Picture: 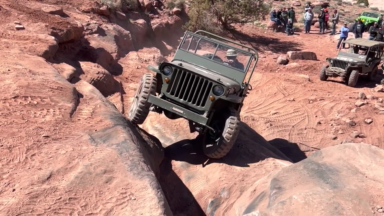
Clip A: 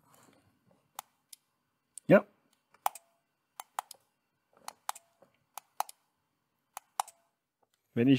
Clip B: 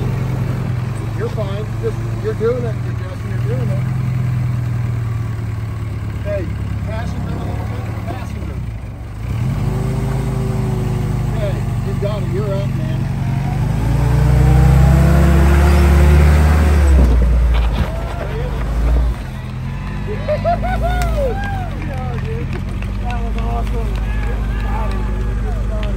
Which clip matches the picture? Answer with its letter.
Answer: B